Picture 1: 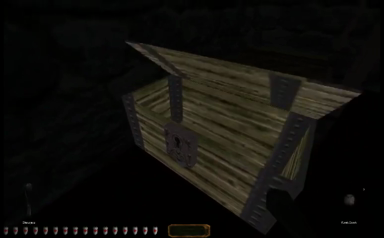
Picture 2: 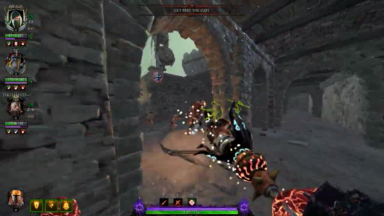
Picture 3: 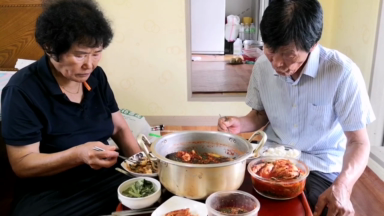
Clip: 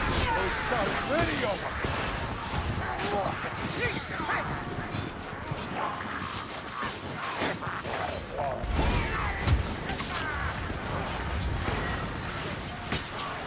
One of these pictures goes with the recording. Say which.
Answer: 2